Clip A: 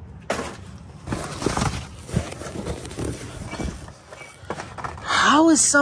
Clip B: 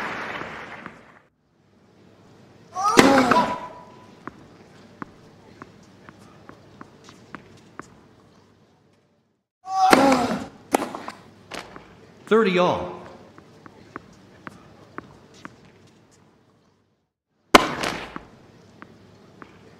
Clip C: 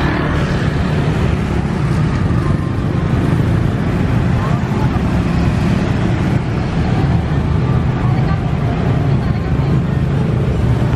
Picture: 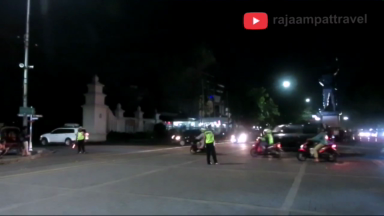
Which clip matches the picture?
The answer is C